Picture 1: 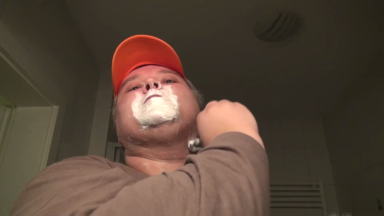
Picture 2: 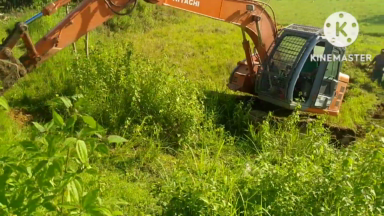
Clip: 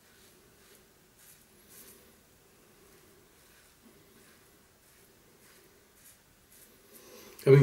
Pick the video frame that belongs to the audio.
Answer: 1